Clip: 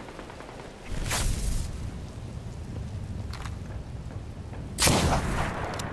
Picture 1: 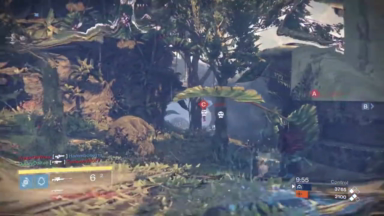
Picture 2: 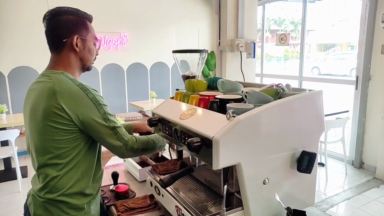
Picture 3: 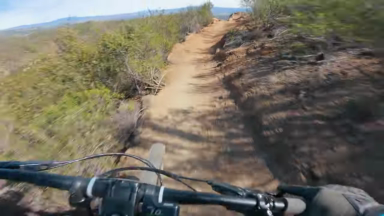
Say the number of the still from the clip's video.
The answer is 1